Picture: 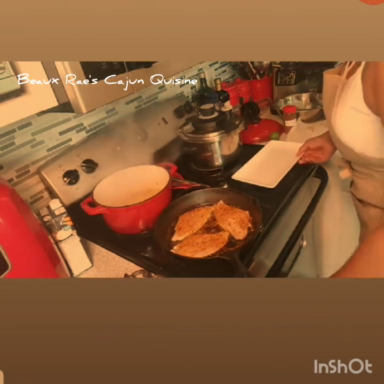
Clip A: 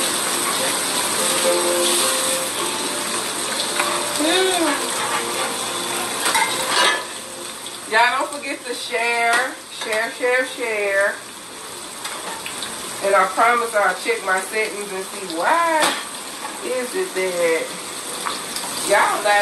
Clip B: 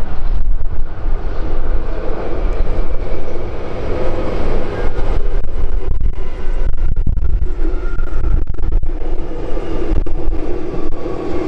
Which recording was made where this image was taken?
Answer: A